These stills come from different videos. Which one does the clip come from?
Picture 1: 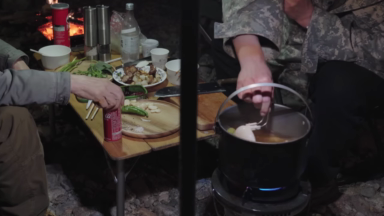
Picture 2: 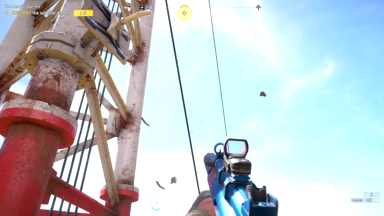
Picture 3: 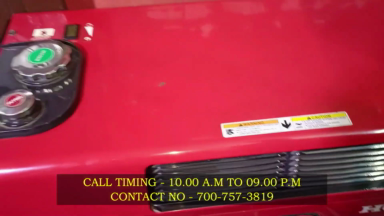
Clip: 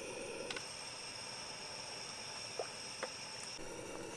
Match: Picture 1